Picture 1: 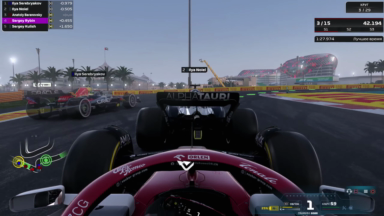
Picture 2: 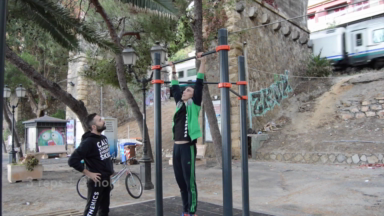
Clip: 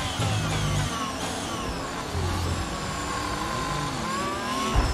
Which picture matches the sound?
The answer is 1